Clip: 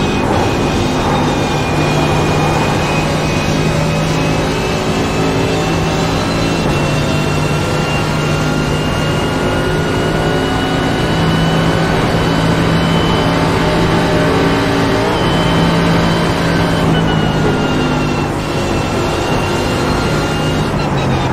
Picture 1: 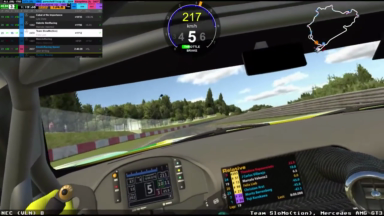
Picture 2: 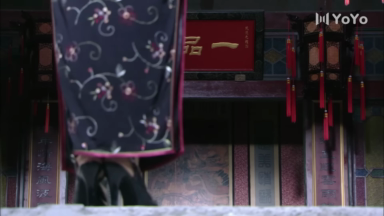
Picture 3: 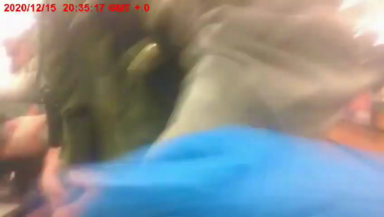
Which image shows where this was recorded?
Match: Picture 1